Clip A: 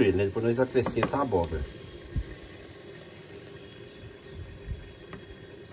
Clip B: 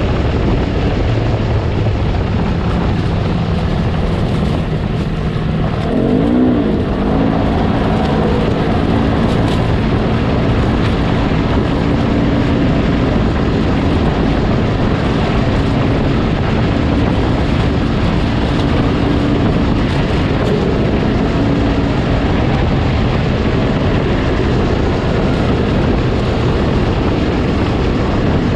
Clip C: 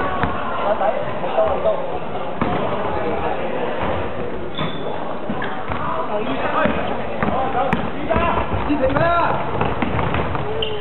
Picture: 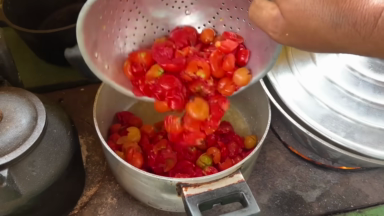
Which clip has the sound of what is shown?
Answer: A